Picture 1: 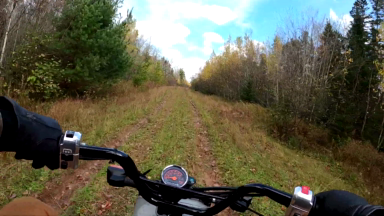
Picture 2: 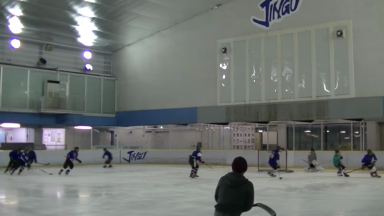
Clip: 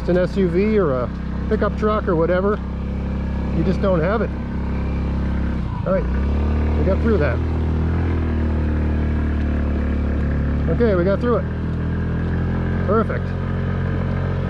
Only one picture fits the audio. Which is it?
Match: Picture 1